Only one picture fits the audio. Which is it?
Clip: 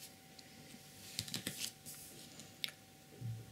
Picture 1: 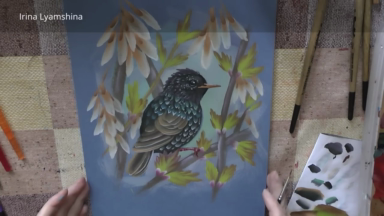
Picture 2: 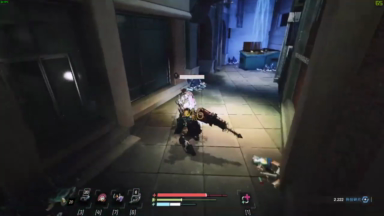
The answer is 1